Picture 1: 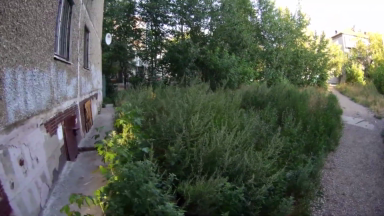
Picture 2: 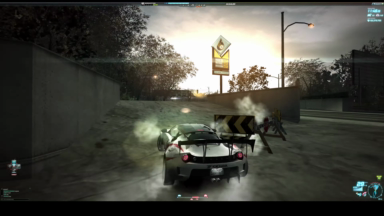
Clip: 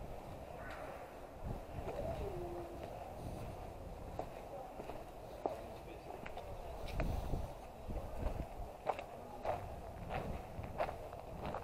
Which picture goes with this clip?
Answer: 1